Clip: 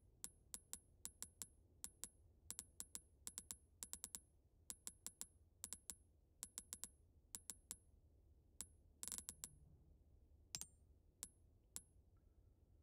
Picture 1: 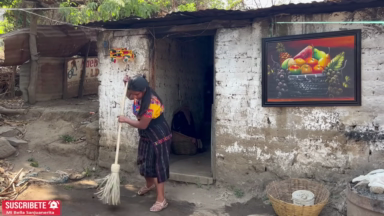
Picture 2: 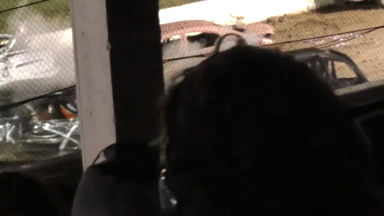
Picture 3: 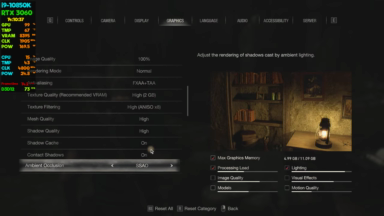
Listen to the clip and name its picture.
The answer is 3